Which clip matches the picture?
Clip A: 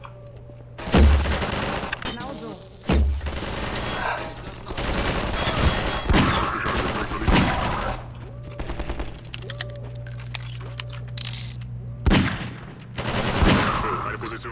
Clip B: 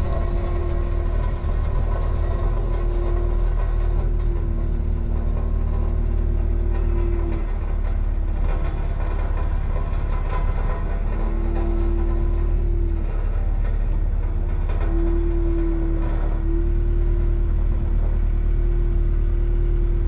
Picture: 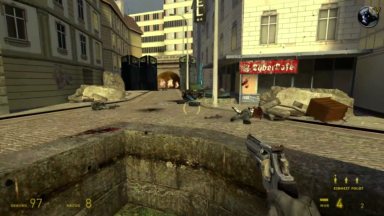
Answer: A